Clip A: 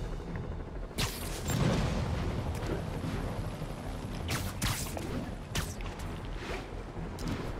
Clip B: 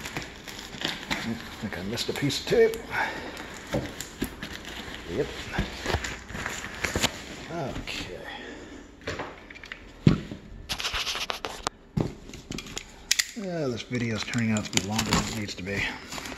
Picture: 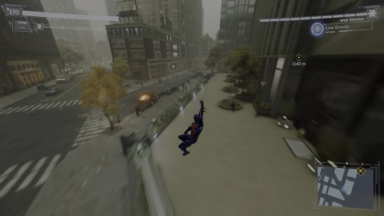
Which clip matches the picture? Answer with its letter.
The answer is A